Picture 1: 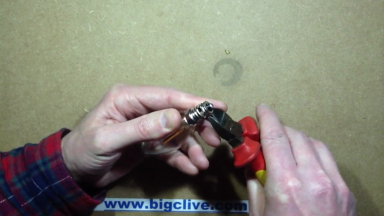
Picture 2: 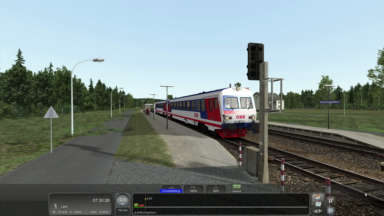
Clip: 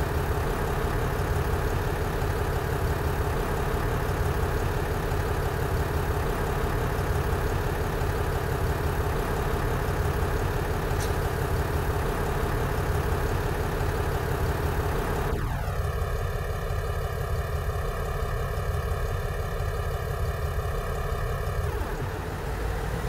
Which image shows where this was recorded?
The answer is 2